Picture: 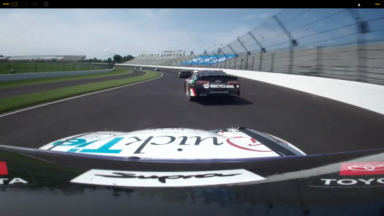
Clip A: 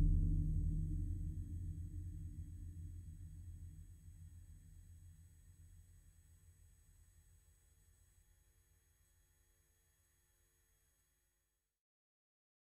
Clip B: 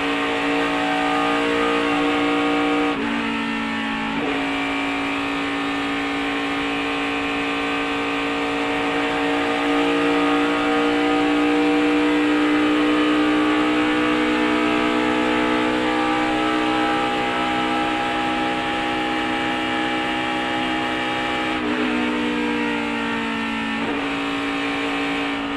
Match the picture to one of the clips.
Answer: B